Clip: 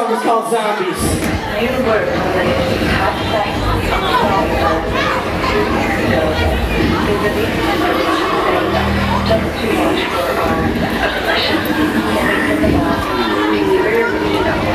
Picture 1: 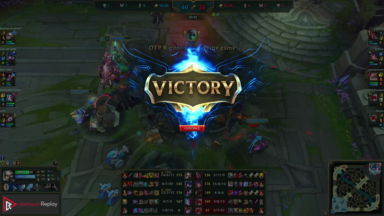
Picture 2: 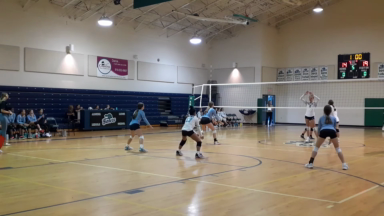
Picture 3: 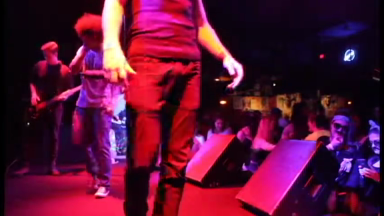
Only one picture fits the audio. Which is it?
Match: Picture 3